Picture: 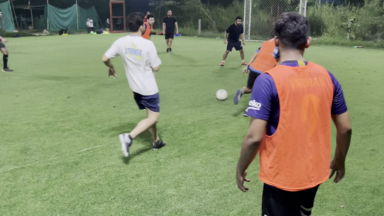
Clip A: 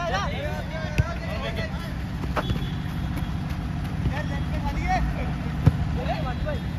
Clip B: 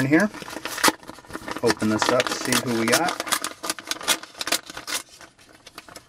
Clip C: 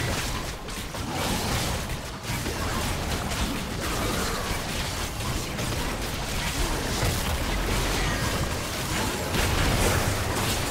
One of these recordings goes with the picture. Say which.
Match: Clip A